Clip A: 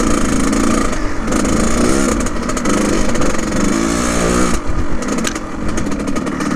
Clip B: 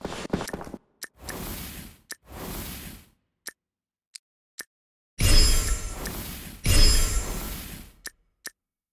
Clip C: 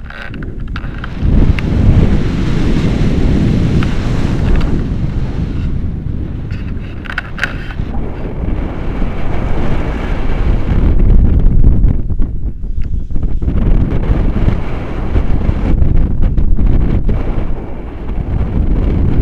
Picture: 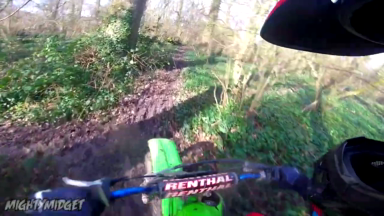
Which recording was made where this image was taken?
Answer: A